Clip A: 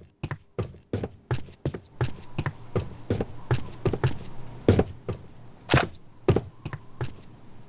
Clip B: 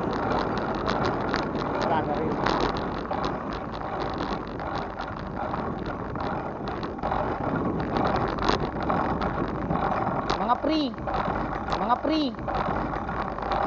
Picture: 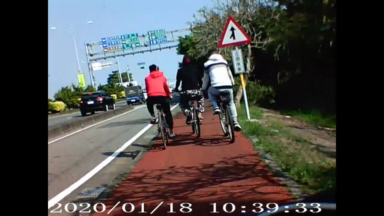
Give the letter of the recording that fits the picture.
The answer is B